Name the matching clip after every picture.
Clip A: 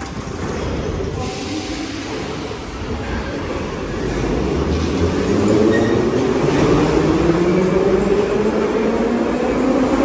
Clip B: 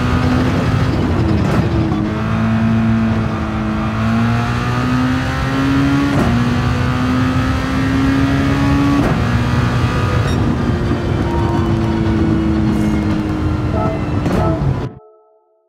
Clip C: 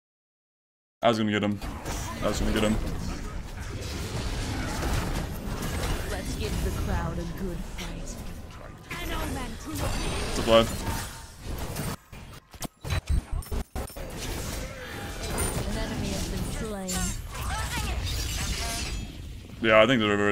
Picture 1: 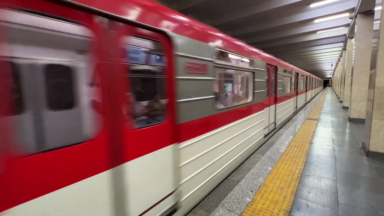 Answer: A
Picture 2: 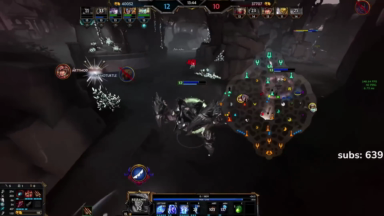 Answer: C